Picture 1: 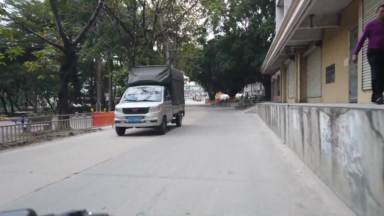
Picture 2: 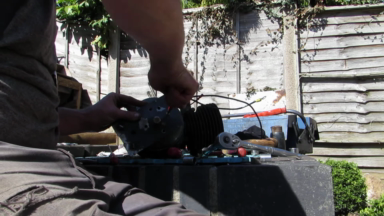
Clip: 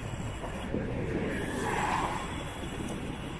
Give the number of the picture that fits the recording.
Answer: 1